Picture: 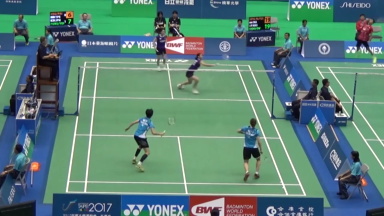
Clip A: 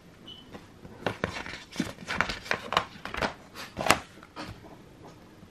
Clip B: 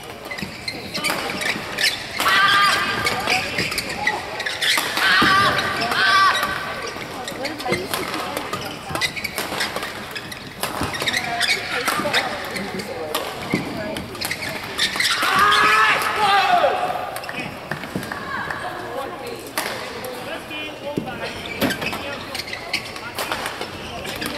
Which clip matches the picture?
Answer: B